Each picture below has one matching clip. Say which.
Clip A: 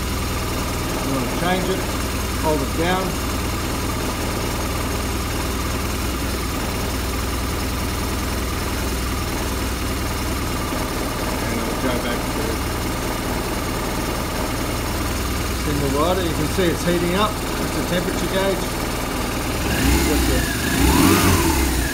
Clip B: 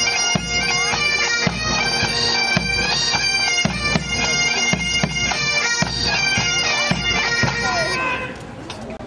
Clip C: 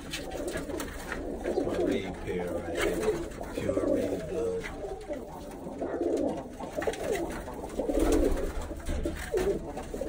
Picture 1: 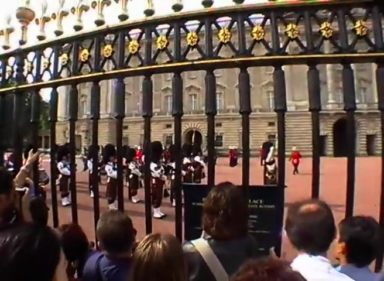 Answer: B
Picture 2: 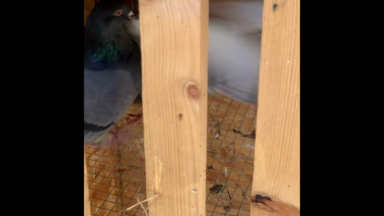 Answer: C